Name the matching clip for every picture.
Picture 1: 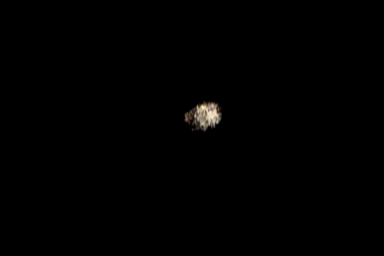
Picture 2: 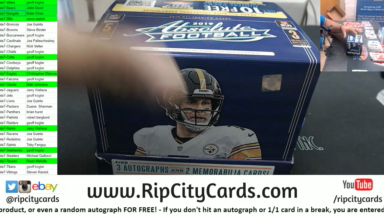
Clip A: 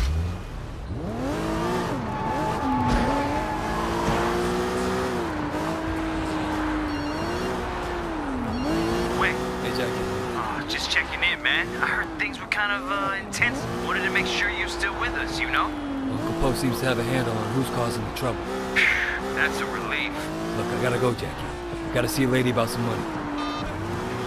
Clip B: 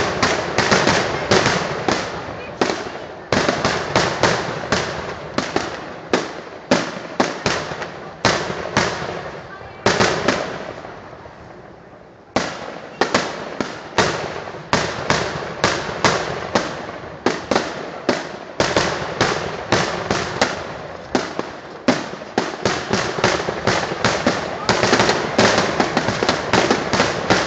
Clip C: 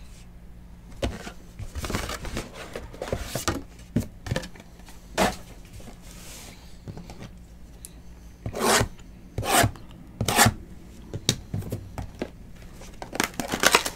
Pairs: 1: B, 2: C